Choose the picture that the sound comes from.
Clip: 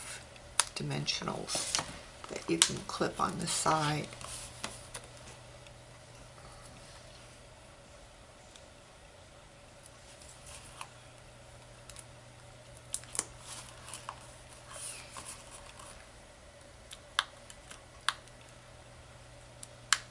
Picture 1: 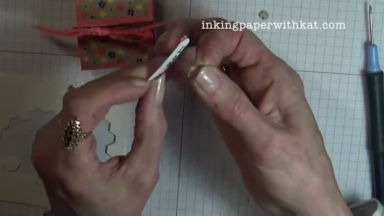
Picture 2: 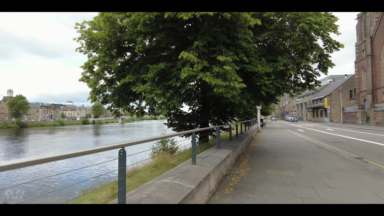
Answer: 1